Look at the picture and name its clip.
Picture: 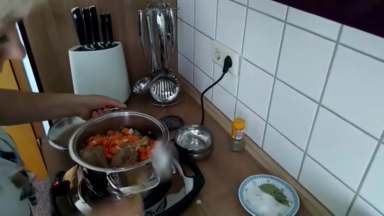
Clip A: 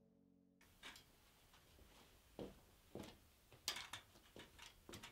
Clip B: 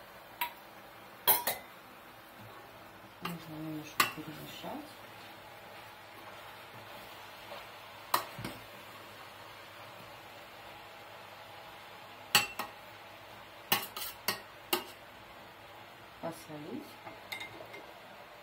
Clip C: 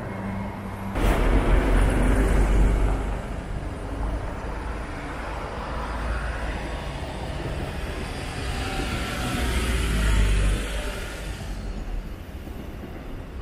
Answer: B